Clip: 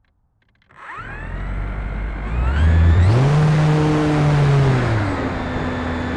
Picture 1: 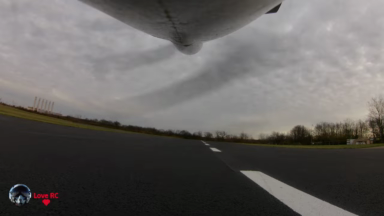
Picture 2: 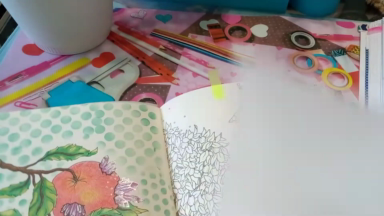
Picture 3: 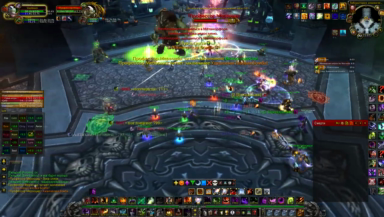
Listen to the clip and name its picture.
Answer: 1